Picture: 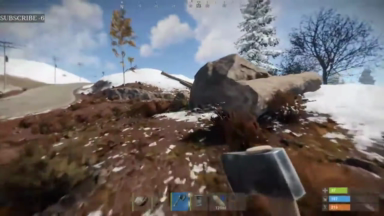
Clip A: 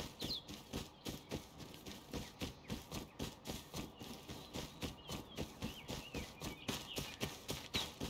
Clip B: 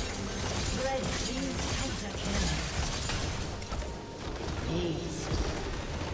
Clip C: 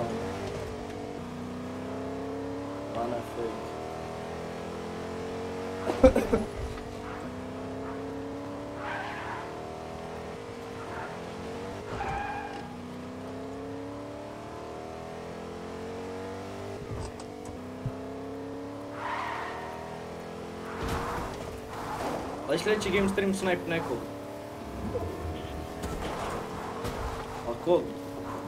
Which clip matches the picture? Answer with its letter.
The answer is A